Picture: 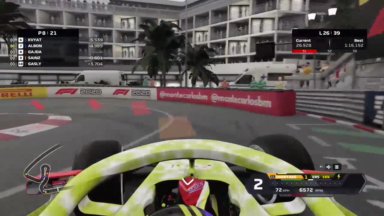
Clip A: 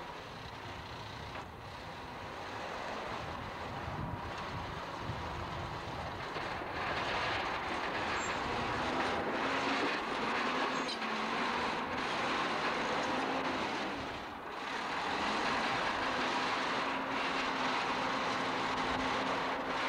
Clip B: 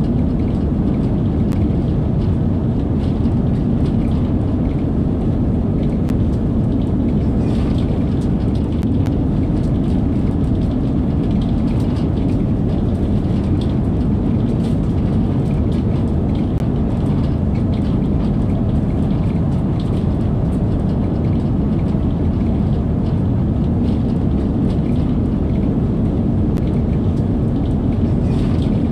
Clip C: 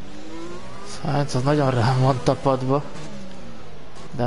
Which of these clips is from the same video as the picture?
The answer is C